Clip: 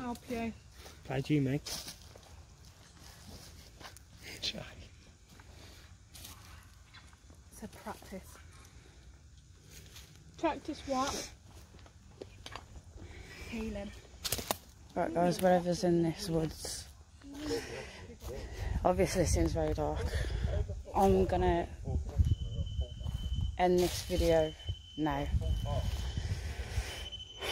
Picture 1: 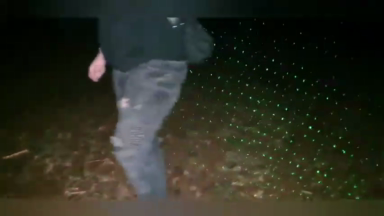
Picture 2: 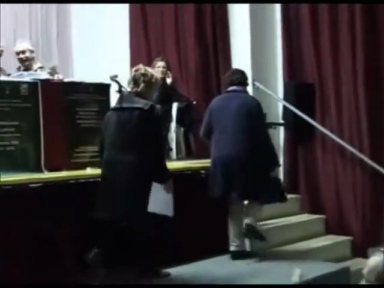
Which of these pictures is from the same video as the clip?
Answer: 1